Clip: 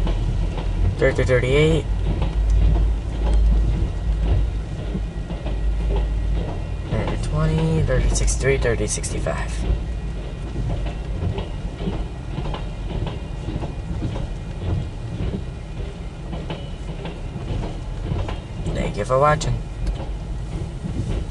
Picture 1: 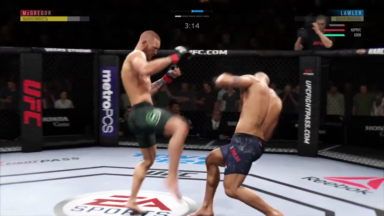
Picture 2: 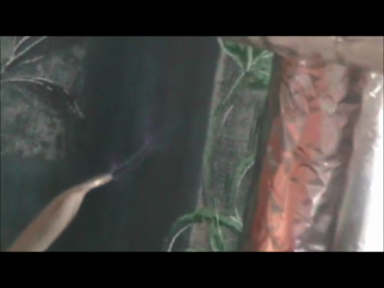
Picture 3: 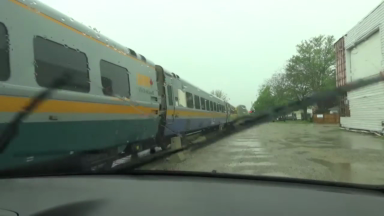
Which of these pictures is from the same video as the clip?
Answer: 3